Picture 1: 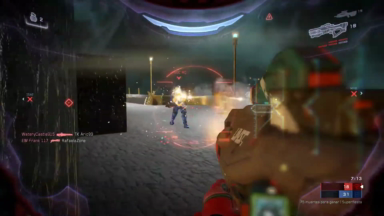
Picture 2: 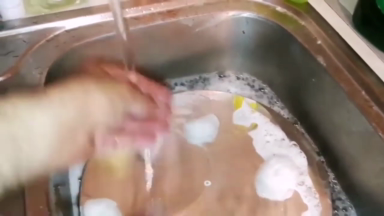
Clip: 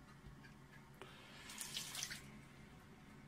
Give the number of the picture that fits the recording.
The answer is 2